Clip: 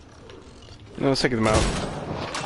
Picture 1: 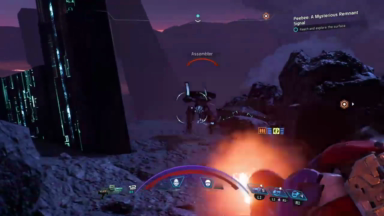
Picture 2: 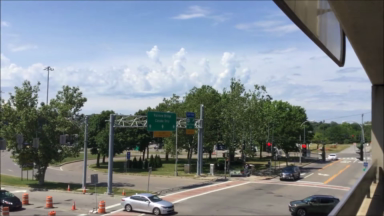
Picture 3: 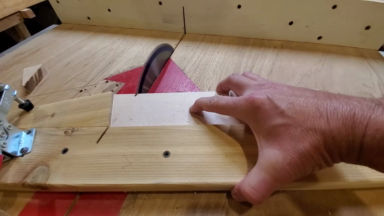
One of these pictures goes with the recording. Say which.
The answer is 1